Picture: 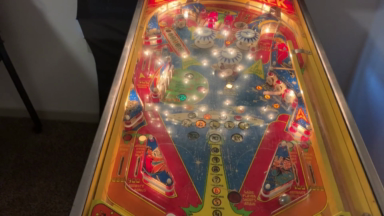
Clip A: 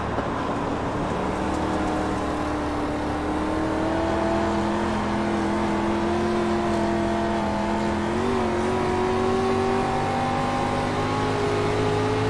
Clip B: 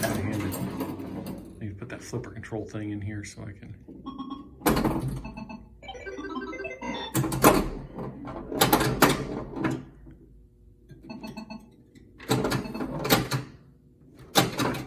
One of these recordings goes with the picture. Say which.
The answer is B